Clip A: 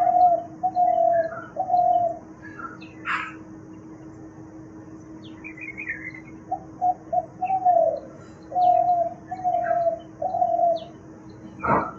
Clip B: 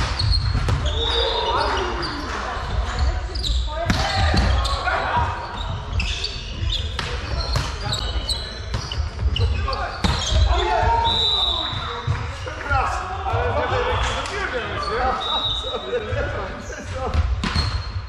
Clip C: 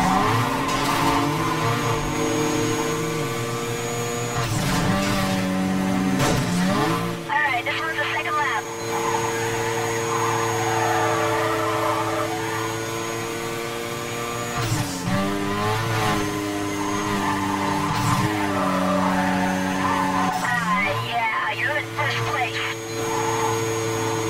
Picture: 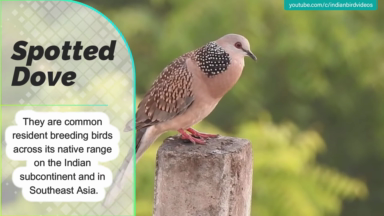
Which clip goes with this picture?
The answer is A